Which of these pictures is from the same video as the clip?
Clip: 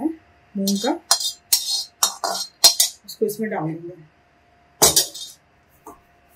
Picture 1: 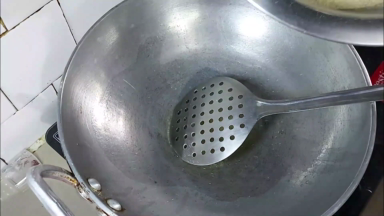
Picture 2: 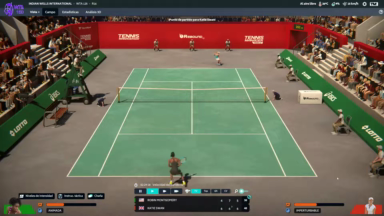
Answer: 1